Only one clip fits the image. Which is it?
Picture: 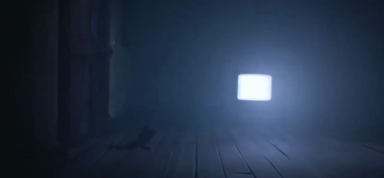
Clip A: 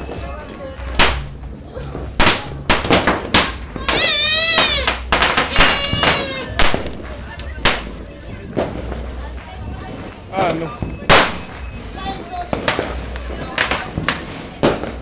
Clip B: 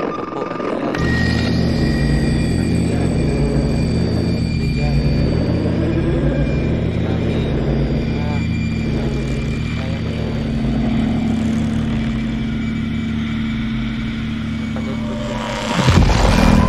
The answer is B